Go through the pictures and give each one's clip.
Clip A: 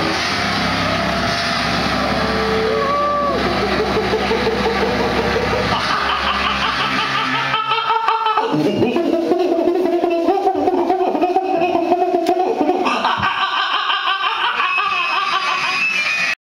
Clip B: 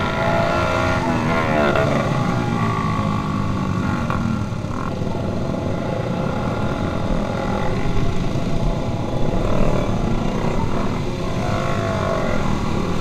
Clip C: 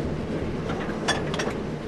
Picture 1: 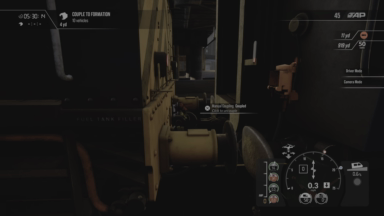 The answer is C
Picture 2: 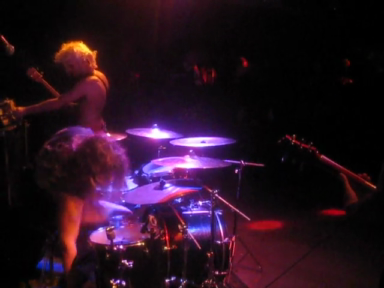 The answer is A